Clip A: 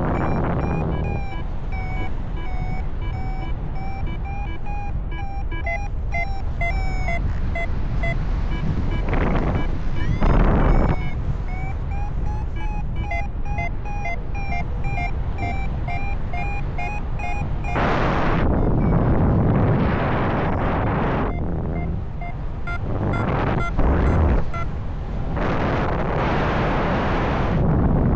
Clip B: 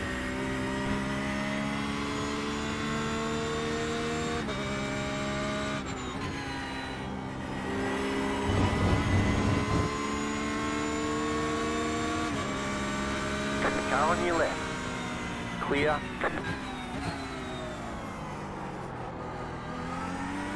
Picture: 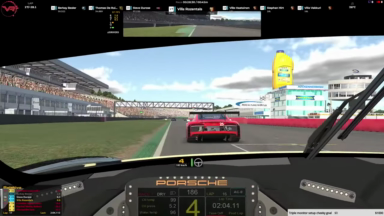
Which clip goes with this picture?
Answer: B